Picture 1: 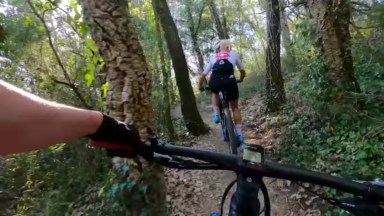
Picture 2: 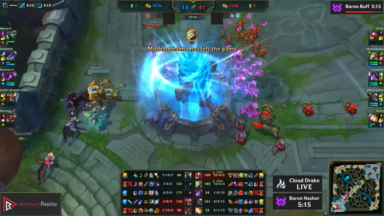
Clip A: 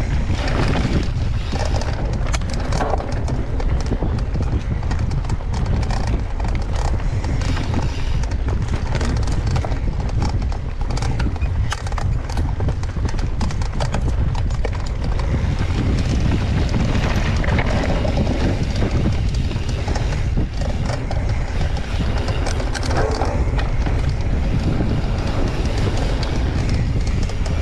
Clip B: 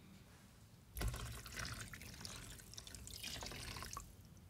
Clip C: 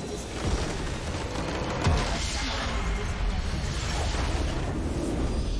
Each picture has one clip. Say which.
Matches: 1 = A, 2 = C